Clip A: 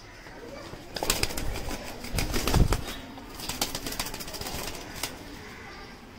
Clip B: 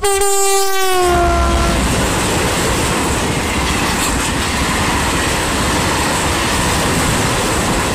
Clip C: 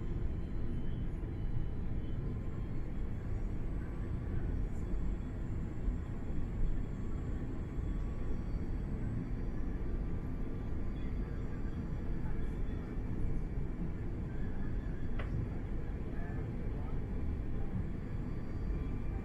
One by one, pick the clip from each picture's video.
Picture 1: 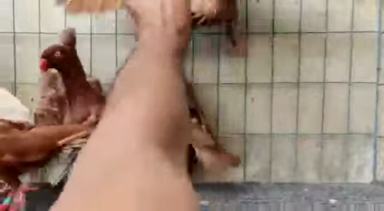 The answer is A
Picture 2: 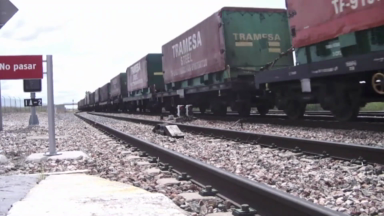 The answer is B